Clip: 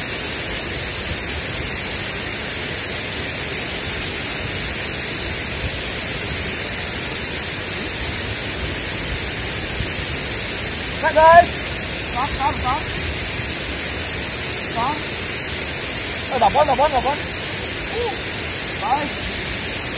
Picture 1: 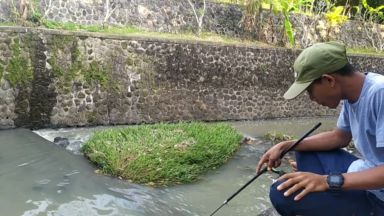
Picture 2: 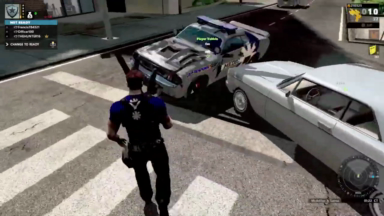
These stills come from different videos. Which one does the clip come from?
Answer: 1